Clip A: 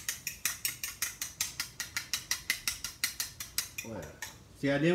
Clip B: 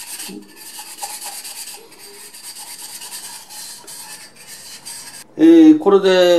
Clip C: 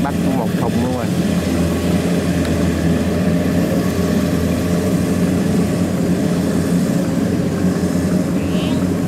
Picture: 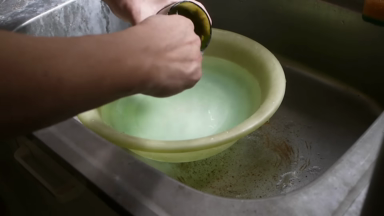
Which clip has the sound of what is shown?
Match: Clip B